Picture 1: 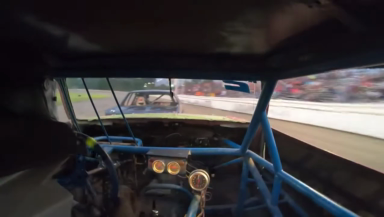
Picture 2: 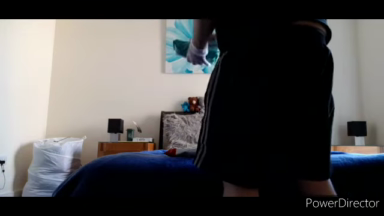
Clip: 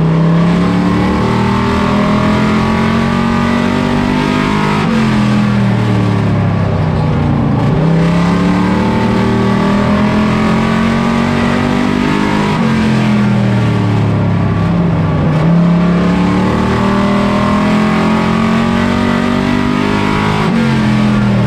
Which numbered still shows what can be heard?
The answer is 1